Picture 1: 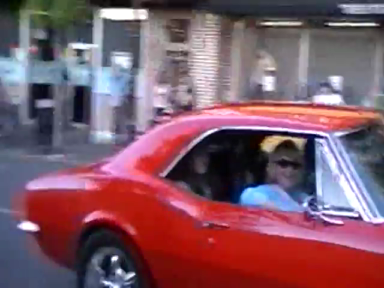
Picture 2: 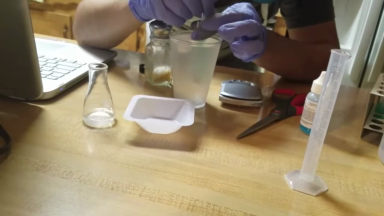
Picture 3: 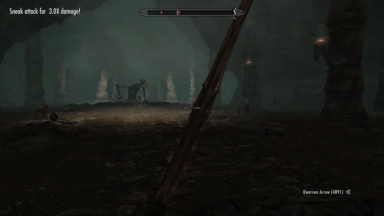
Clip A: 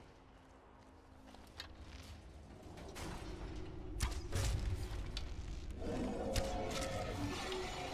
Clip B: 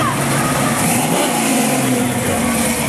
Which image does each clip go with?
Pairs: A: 3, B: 1